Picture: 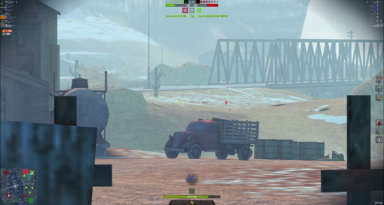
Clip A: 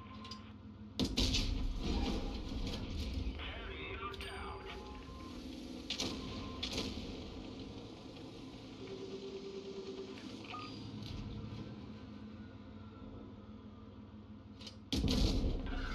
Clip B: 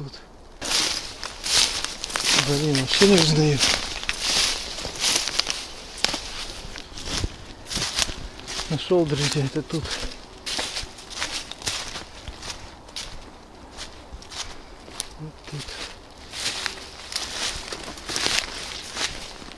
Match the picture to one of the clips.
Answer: A